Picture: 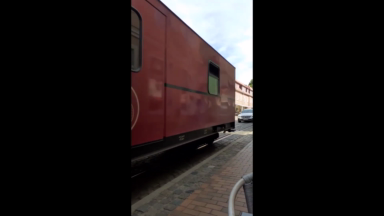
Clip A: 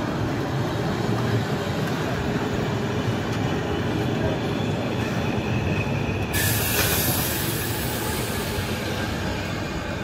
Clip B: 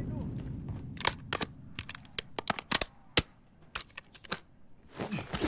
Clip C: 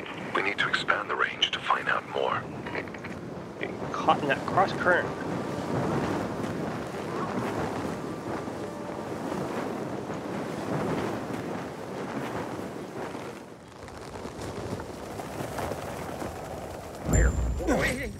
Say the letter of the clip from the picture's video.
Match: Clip A